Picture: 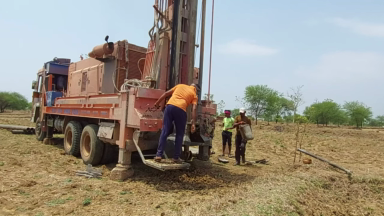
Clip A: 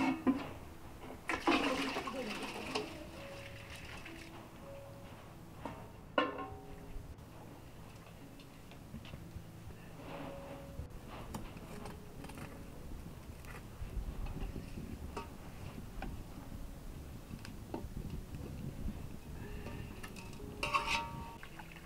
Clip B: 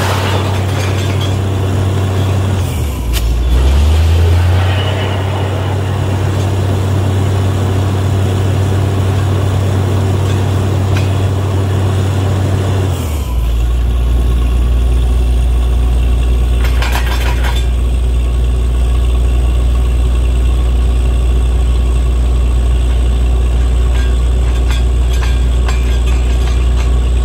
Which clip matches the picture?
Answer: B